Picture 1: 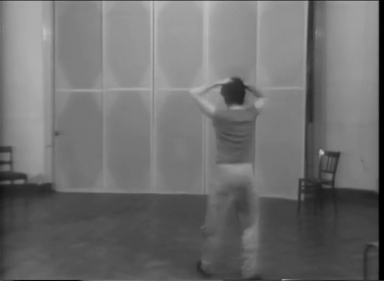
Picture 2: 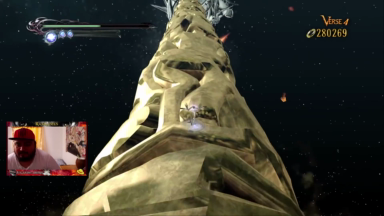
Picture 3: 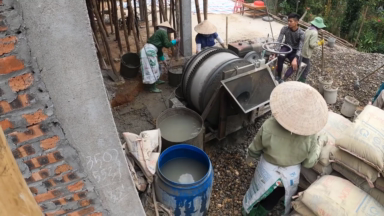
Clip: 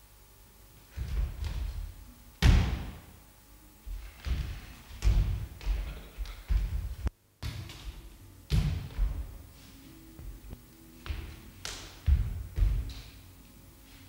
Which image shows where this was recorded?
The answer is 1